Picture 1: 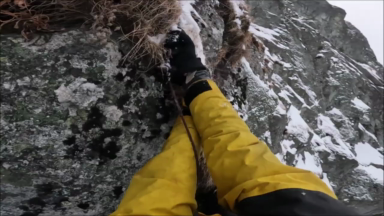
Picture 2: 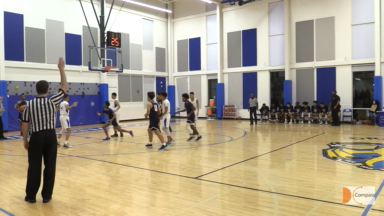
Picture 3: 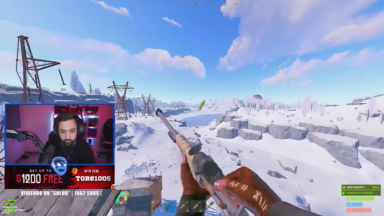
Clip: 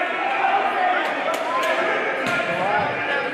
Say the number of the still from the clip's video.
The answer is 2